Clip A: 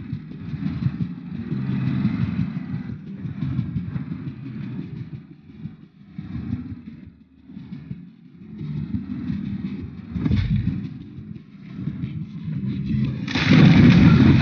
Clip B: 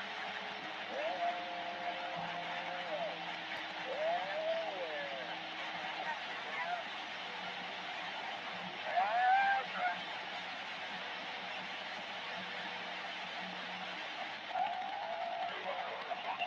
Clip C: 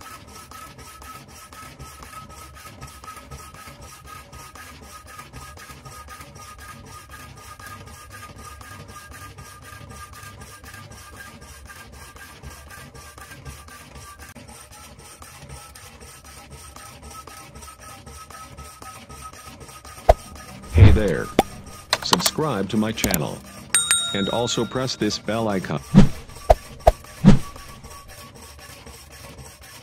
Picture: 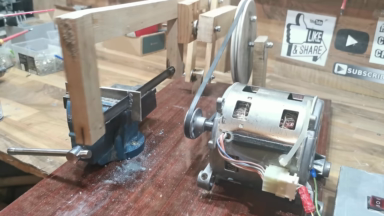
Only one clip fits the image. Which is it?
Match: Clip C